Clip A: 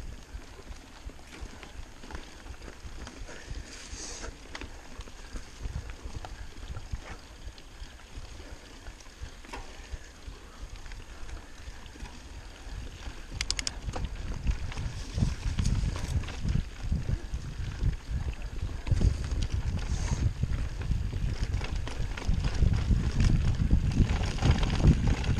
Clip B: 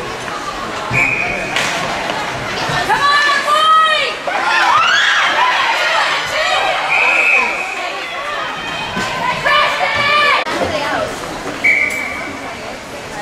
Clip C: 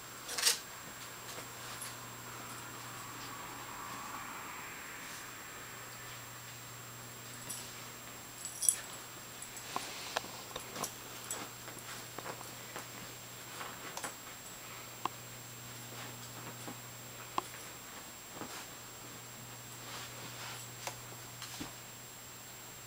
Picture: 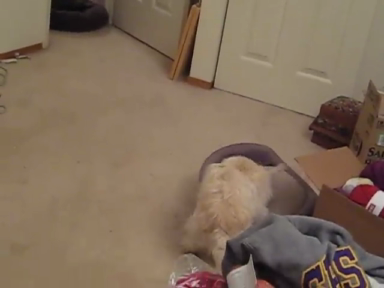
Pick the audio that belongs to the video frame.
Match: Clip C